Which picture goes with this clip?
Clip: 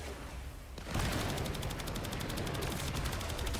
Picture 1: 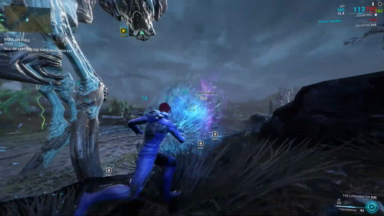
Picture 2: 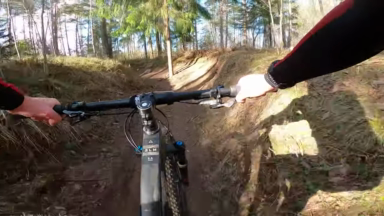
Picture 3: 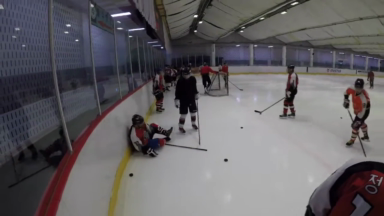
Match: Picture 1